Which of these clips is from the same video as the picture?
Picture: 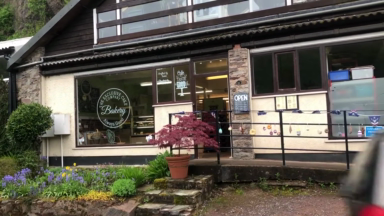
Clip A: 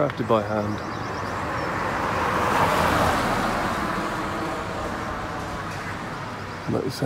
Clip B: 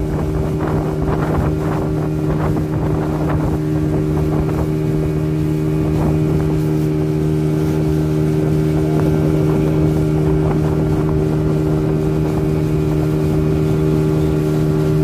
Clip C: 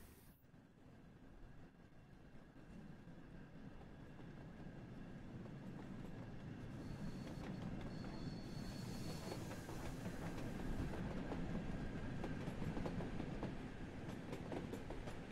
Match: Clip A